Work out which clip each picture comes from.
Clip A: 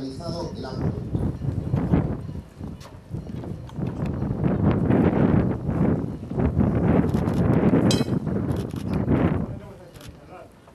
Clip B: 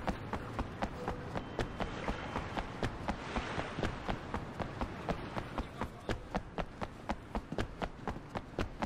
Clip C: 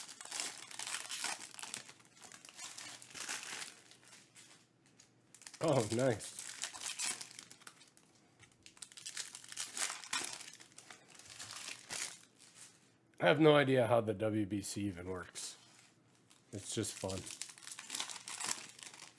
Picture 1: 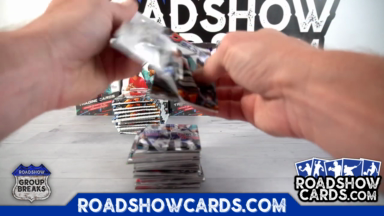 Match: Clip C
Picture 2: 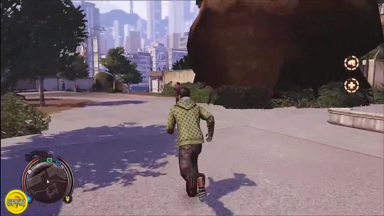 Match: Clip B